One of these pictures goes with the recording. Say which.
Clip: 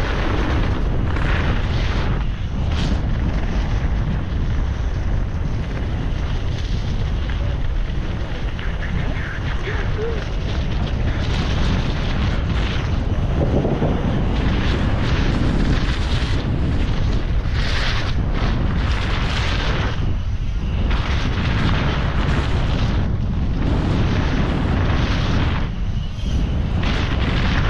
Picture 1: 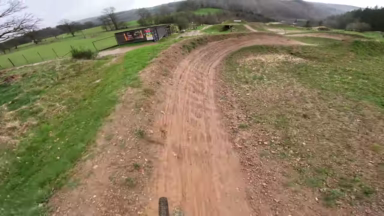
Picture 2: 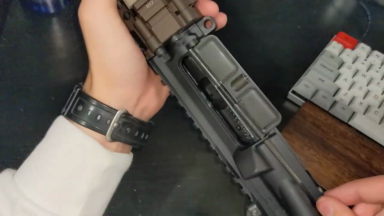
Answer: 1